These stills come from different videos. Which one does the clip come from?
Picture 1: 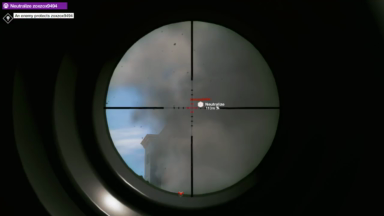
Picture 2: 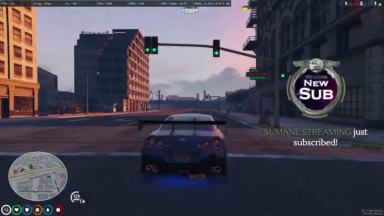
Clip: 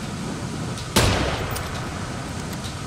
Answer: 1